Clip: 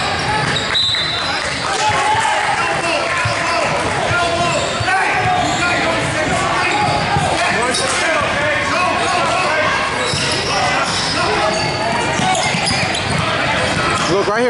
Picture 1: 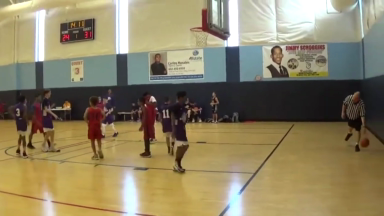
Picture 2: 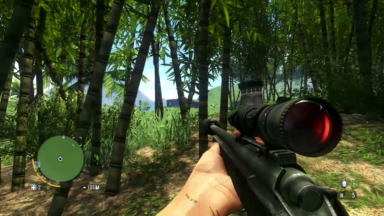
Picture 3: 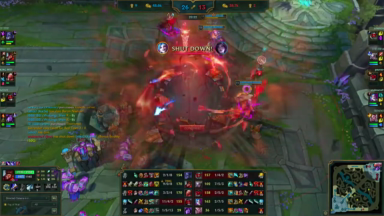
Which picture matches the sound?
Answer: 1